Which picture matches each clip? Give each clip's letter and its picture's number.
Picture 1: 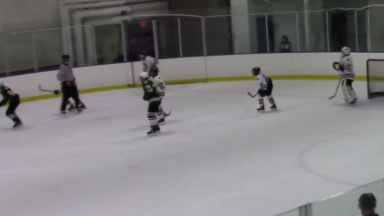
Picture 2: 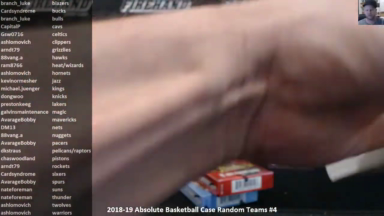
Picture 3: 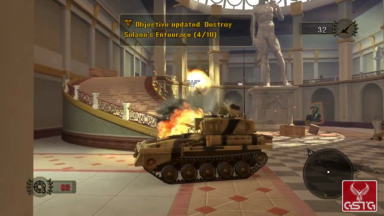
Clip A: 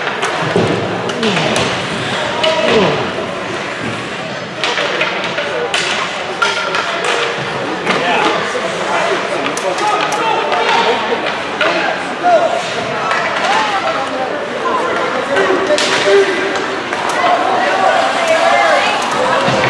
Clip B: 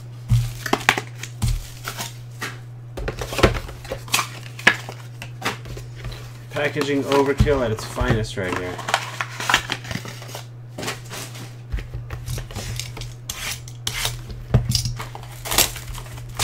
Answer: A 1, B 2